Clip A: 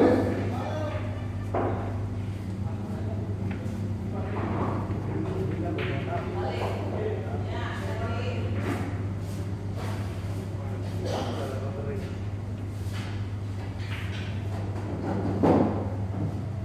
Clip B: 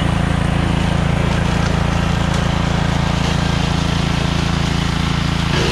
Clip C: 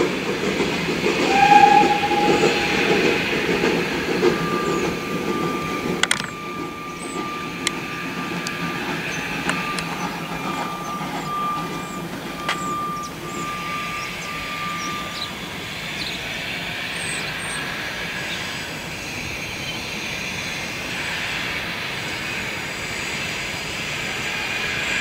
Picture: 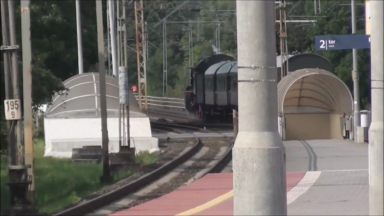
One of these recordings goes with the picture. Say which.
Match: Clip C